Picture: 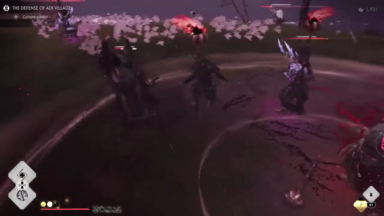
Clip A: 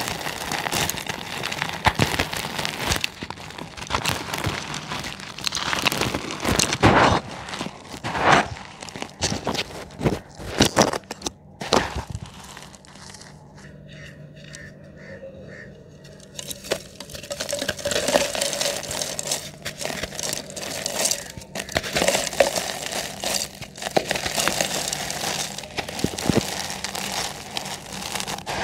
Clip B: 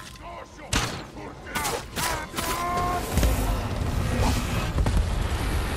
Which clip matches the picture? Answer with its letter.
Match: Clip B